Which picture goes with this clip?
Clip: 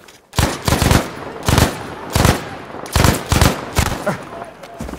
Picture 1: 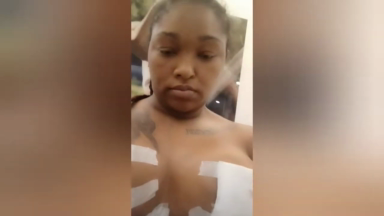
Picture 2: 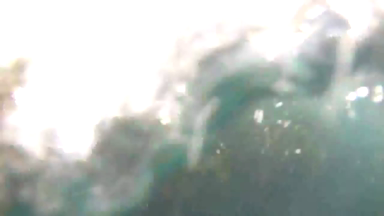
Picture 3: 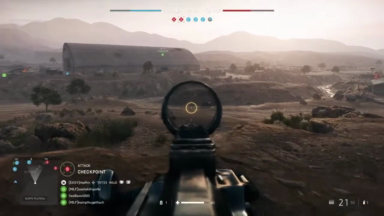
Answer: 3